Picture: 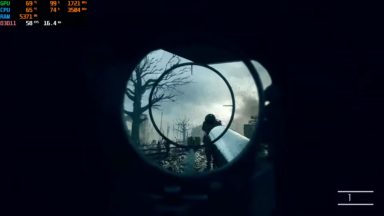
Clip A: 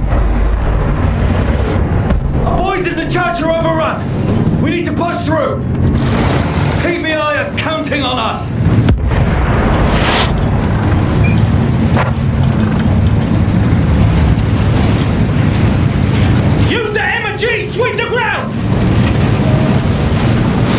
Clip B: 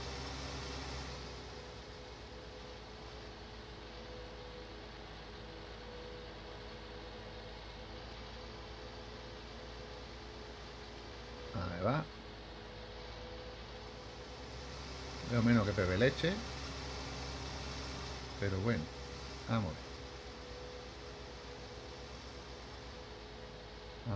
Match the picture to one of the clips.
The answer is A